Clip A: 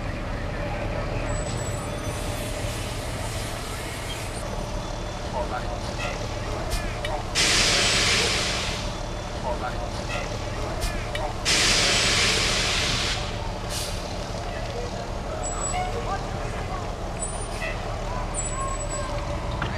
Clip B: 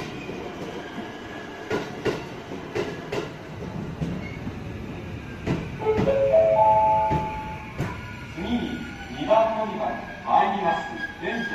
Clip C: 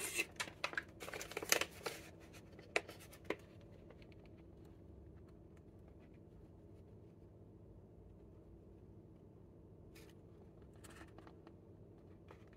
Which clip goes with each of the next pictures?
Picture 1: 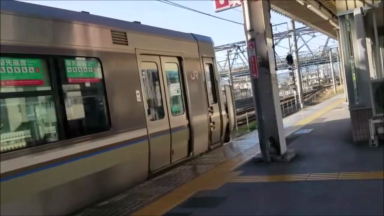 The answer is B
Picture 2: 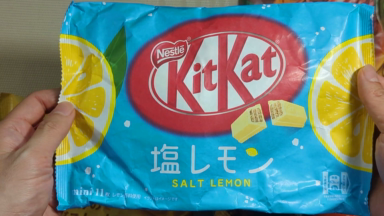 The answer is C